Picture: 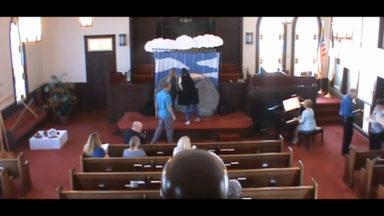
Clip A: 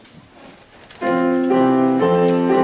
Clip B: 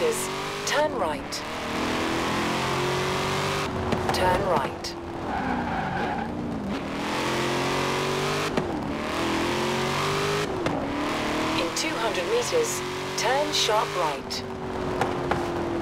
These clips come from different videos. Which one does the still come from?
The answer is A